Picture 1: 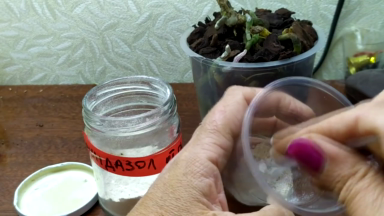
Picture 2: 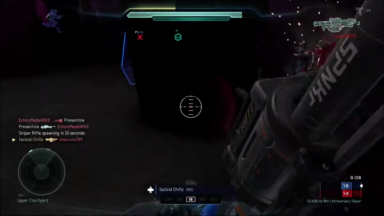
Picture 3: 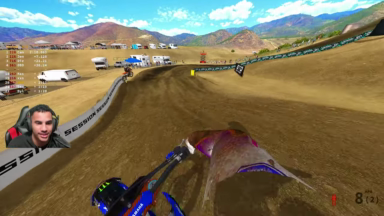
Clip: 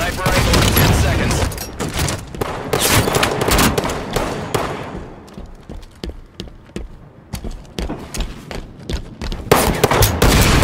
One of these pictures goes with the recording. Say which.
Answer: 2